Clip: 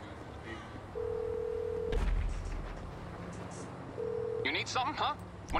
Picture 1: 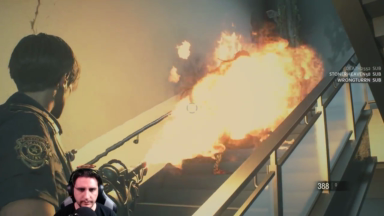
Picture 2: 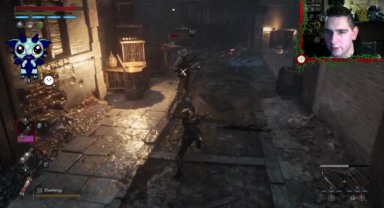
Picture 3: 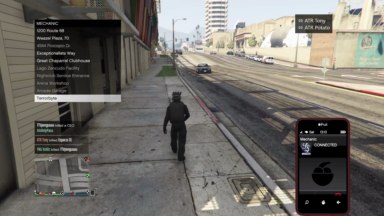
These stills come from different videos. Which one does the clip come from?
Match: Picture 3